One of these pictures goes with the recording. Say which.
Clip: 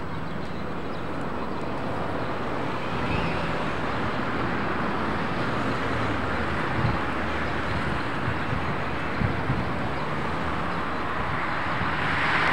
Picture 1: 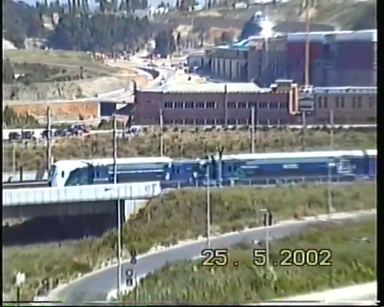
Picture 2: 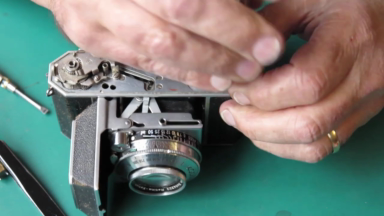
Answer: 1